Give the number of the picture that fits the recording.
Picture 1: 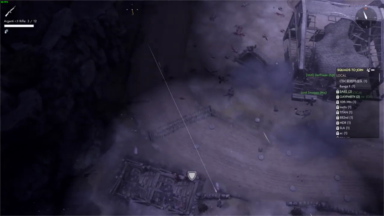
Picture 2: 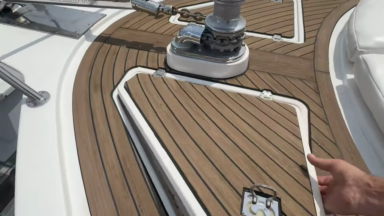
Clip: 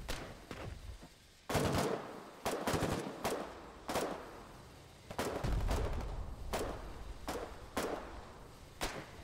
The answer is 1